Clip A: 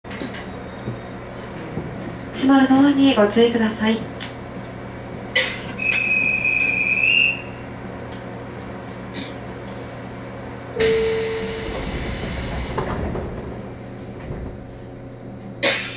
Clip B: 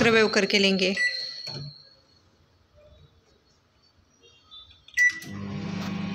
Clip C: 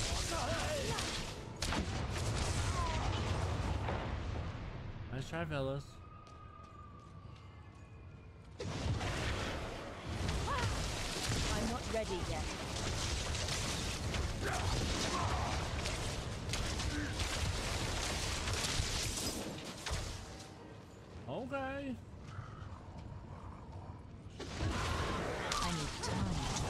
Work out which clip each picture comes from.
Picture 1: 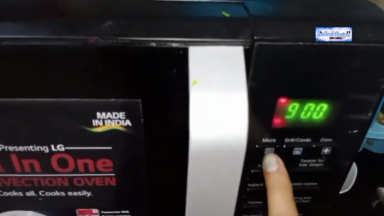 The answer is B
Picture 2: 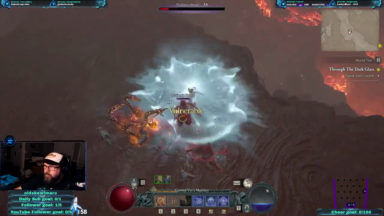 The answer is C